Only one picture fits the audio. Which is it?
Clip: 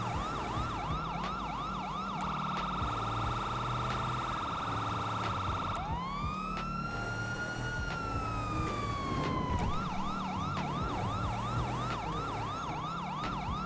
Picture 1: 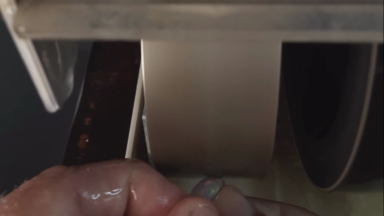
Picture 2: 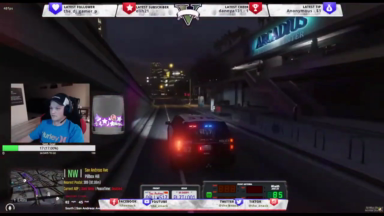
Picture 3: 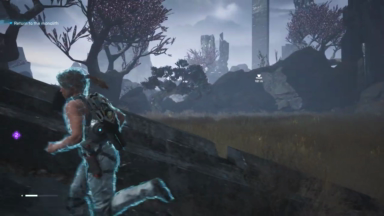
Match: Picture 2